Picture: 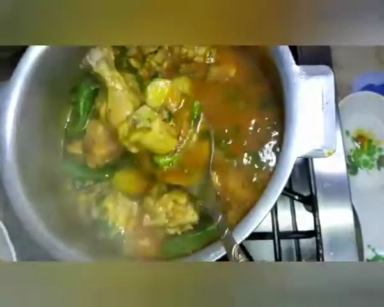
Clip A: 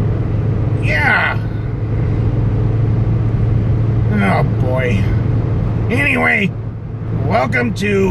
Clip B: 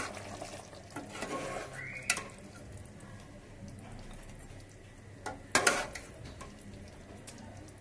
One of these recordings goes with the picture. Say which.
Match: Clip B